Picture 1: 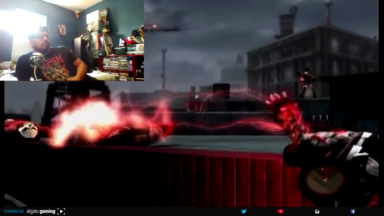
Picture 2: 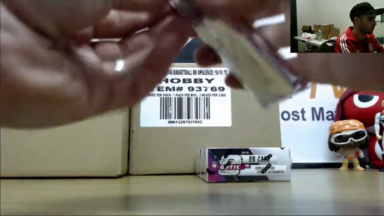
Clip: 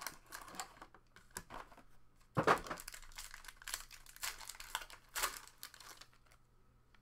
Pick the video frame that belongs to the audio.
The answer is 2